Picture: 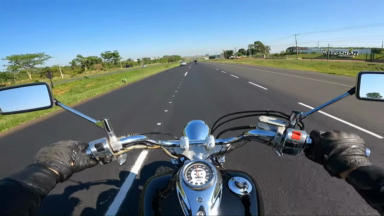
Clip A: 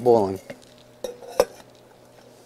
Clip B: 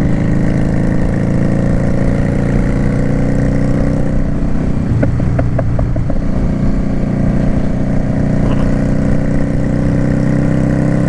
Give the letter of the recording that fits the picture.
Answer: B